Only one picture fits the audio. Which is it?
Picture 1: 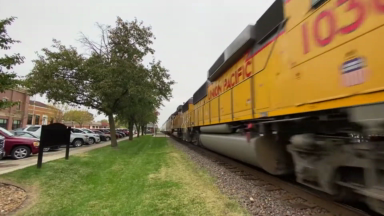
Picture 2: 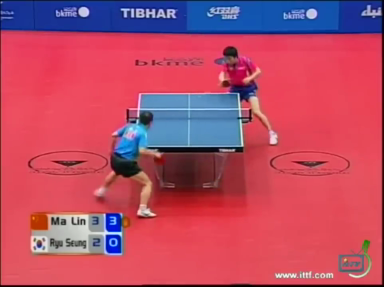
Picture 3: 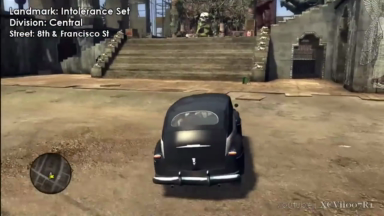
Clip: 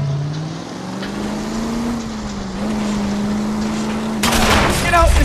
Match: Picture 3